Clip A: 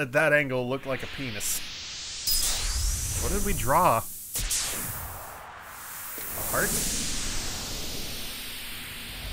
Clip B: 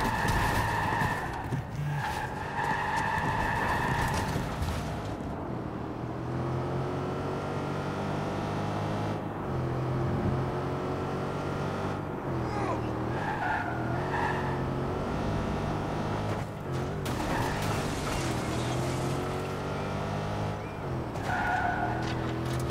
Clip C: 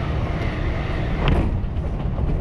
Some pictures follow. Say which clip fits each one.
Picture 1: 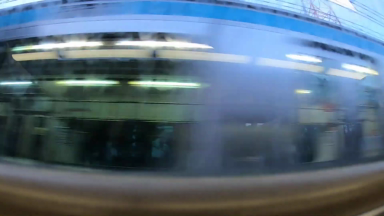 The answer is C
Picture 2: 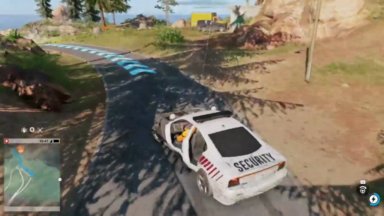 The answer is B